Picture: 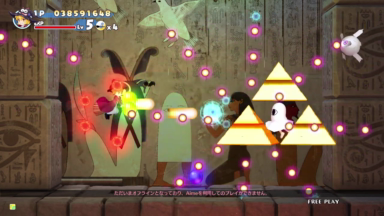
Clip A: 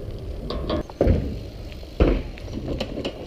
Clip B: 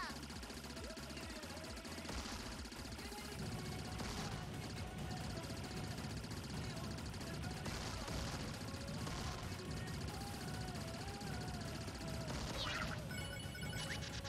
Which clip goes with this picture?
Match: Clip B